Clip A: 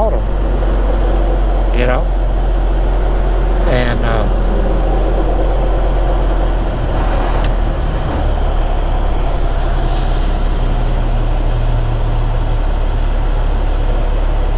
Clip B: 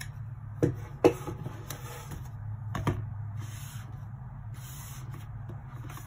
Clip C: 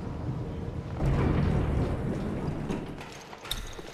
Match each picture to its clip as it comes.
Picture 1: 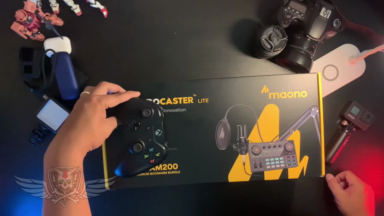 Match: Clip B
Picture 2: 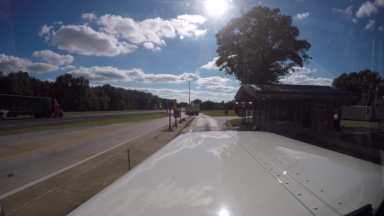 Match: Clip A